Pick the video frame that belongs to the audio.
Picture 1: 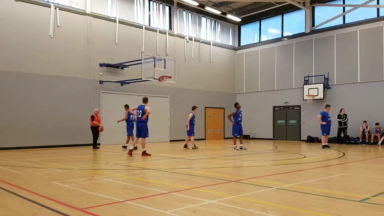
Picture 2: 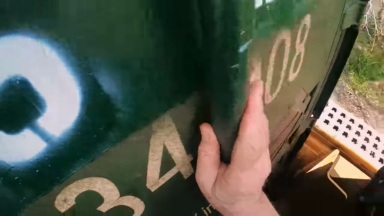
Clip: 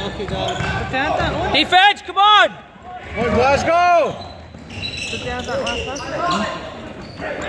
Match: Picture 1